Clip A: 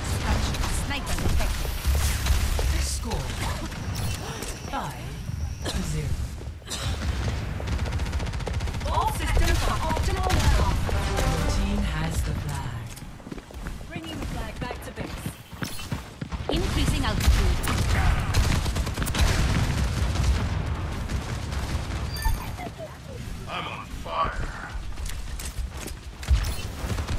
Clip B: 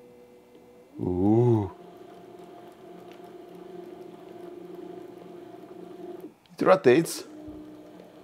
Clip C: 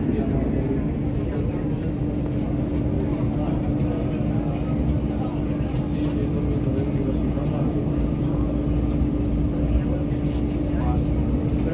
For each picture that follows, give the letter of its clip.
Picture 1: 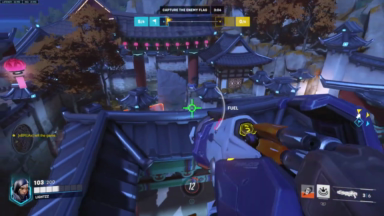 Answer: A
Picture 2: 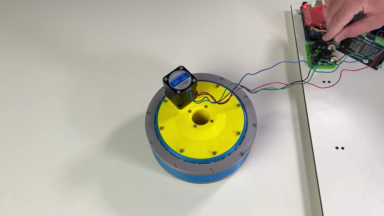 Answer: B